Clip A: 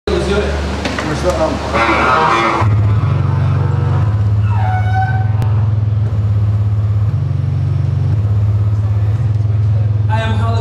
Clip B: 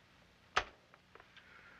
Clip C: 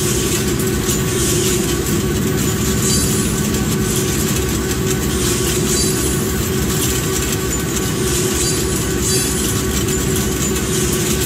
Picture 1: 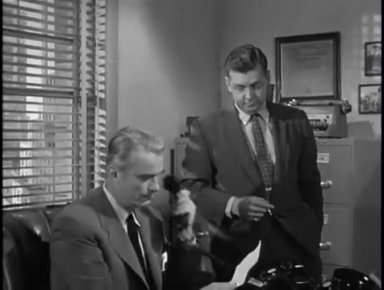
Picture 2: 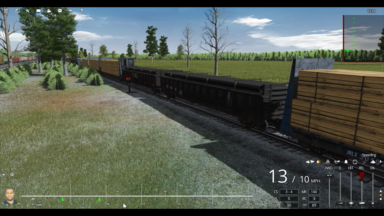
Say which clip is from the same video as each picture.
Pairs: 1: B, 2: C